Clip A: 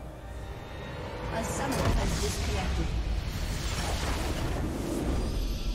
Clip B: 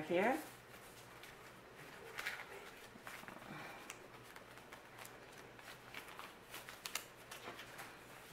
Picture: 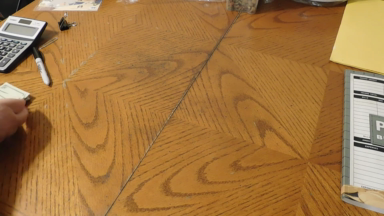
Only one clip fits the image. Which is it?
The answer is B